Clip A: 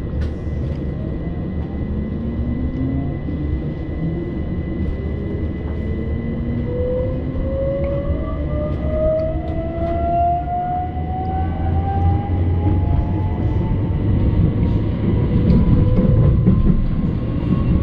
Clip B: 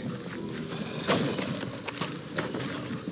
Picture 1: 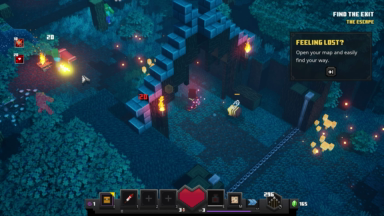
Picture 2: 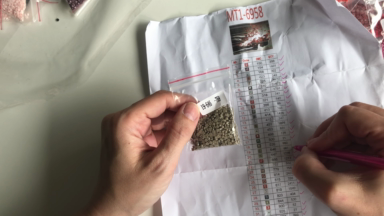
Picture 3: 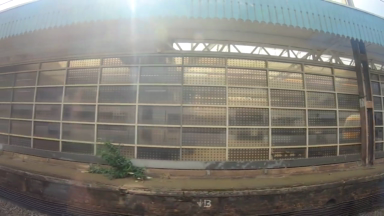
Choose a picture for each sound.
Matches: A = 3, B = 1